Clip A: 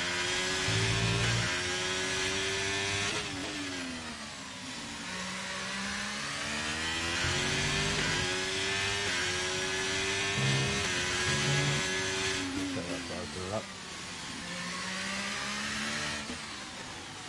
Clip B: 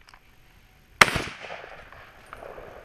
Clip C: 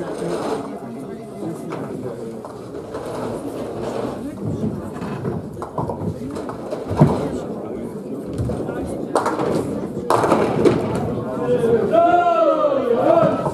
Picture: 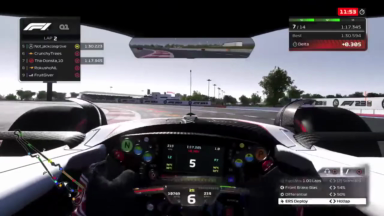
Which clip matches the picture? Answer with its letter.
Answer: A